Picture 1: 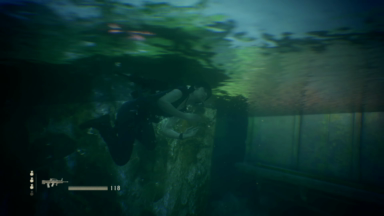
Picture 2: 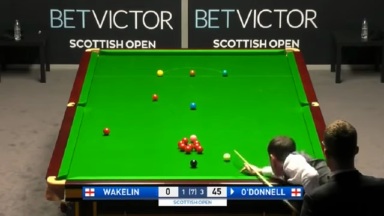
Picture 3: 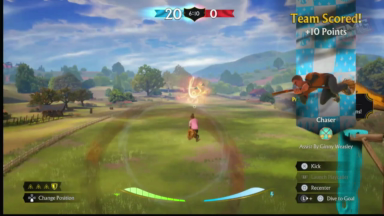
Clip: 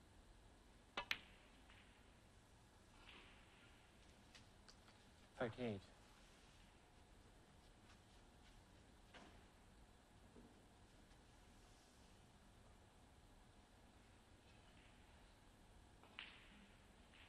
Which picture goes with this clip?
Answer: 2